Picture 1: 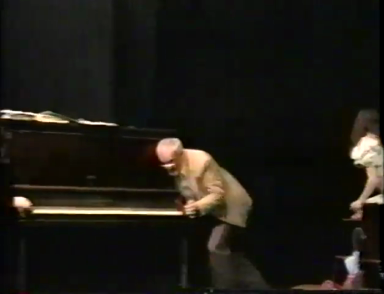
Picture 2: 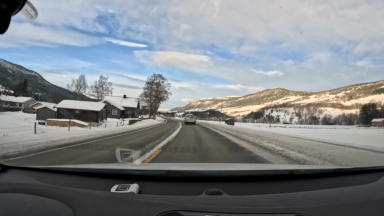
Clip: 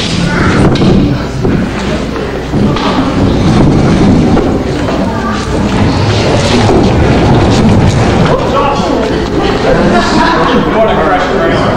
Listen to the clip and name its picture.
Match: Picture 1